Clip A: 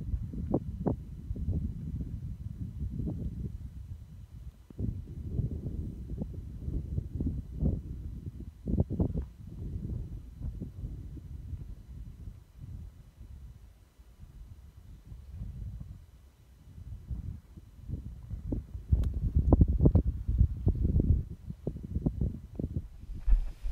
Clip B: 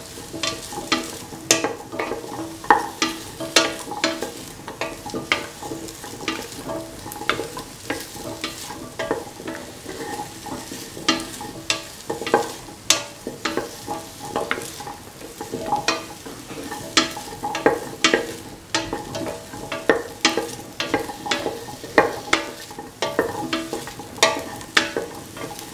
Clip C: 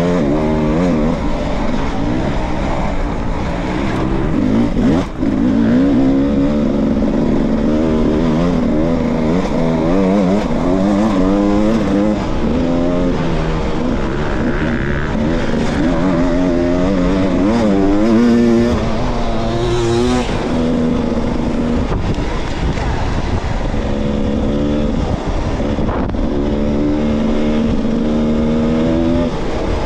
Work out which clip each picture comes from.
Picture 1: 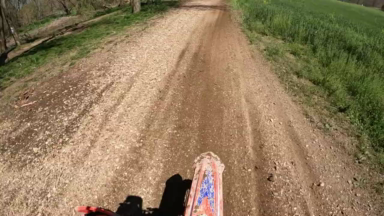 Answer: C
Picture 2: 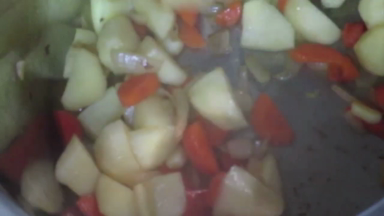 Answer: B